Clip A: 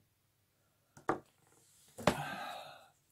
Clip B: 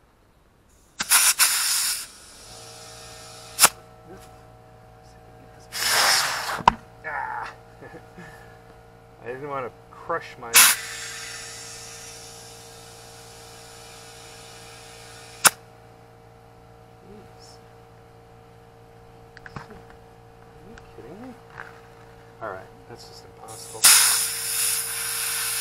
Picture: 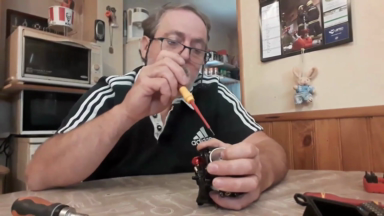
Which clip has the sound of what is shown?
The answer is A